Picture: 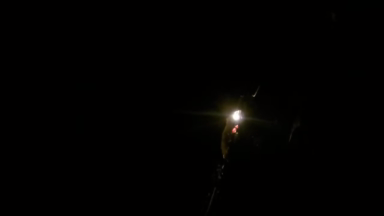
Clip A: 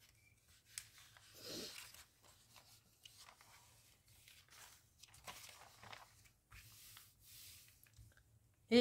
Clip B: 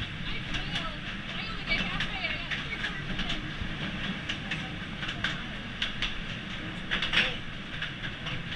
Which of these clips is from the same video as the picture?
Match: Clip B